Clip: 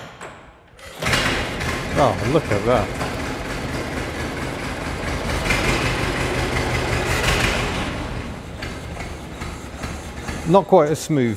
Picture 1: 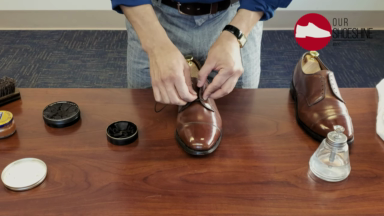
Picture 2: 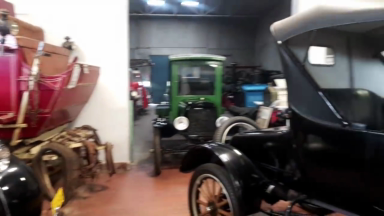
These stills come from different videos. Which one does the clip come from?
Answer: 2